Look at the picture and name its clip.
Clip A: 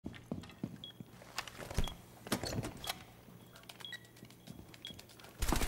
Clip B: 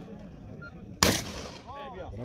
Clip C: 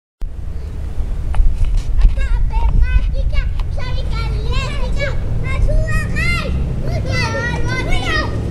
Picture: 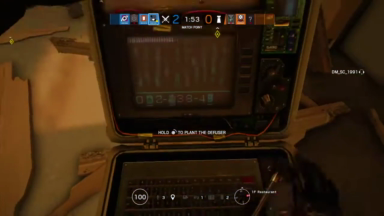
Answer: A